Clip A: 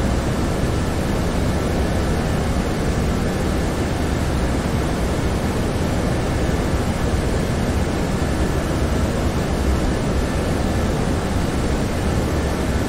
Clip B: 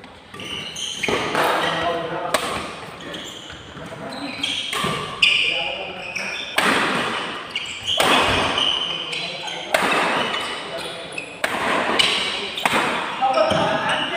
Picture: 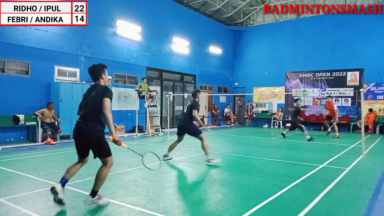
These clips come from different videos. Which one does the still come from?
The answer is B